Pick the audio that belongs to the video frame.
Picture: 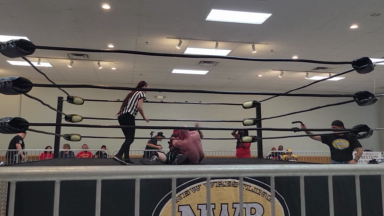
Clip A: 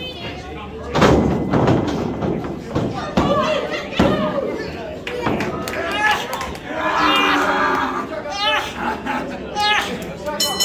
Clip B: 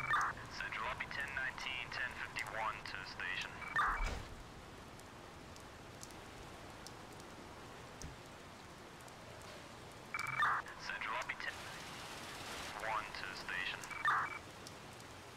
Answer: A